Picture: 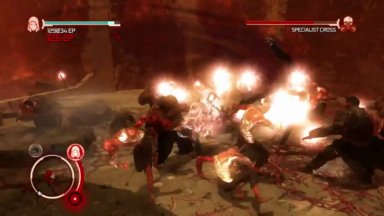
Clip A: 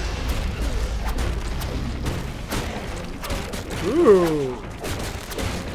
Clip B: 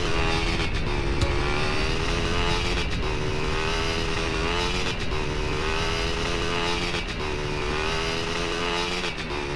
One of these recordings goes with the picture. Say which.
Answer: A